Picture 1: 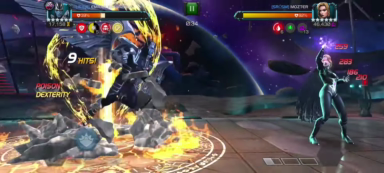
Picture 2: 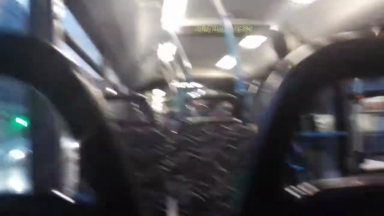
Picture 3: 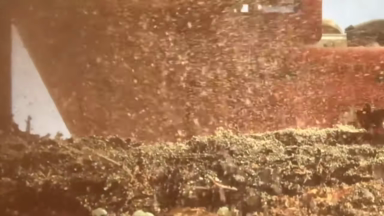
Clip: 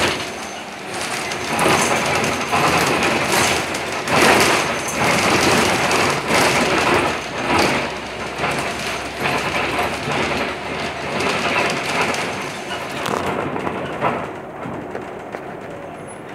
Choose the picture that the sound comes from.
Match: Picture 2